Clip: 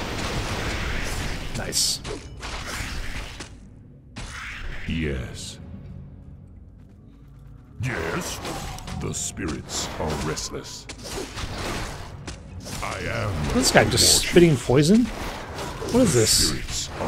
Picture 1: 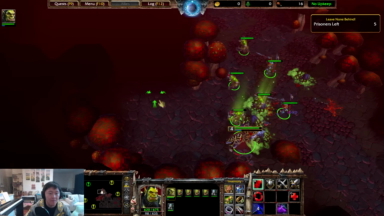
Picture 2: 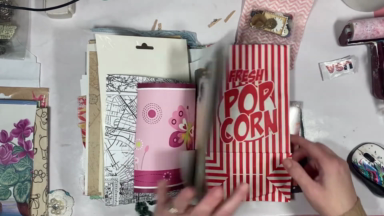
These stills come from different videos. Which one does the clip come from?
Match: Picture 1